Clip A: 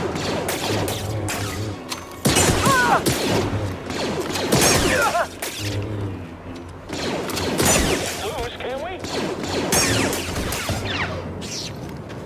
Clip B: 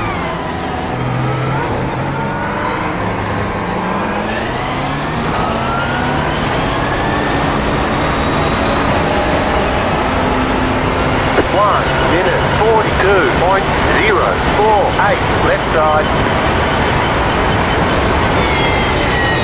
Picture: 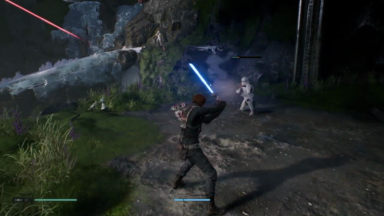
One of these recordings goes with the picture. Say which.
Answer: A